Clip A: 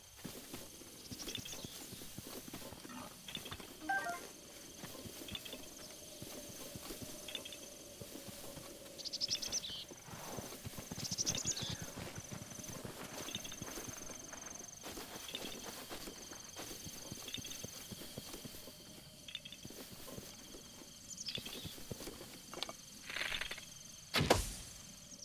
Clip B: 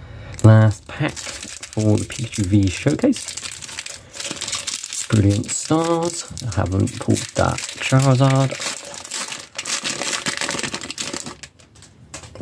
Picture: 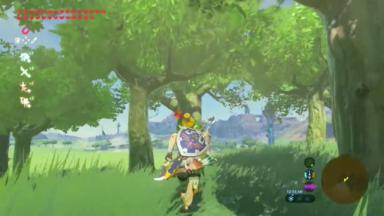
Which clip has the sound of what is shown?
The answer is A